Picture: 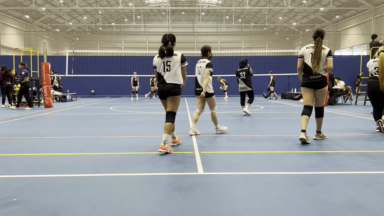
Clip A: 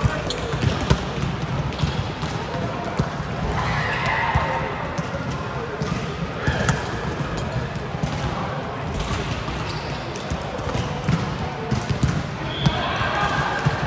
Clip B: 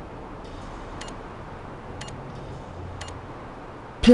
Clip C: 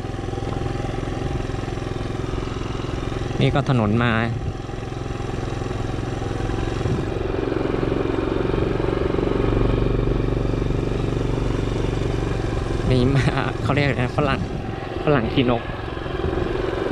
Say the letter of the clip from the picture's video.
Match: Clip A